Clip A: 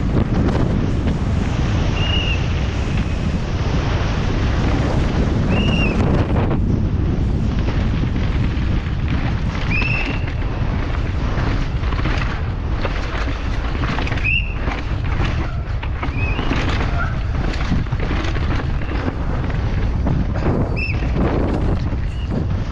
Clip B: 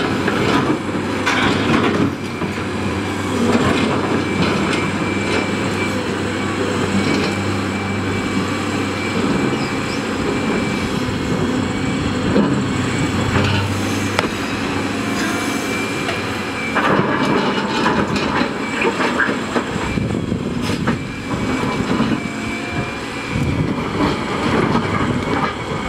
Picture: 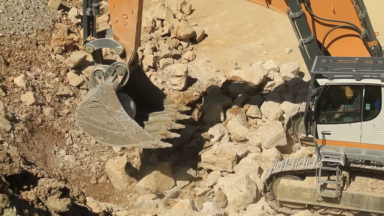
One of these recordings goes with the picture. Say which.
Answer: B